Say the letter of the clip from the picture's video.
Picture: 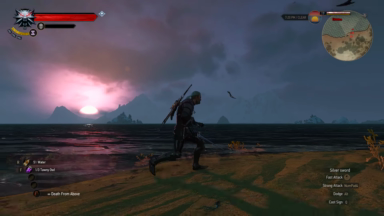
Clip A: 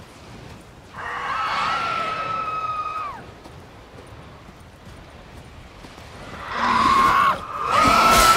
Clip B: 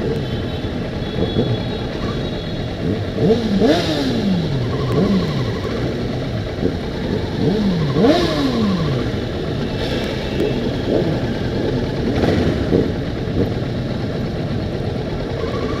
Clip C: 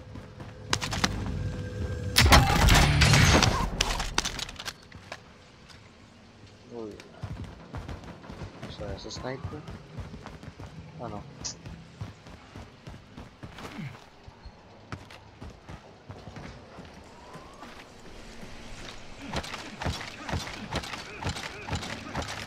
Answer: A